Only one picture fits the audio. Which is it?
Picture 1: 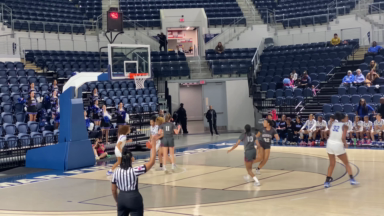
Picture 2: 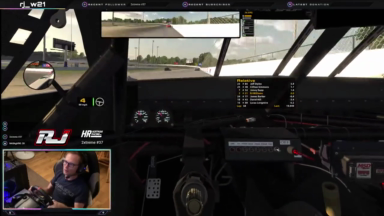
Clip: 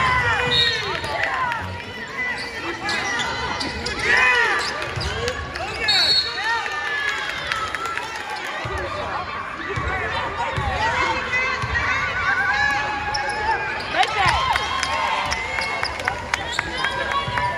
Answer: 1